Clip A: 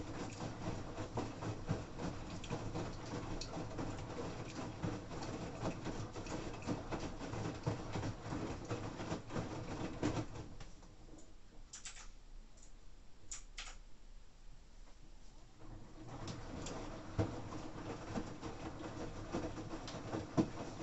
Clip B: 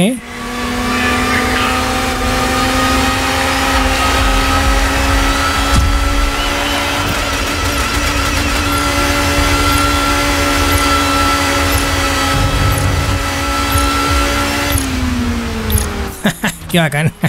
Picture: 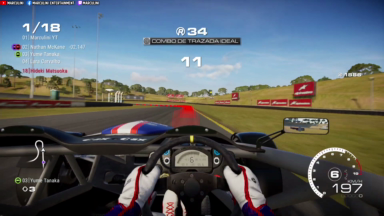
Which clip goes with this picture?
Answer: B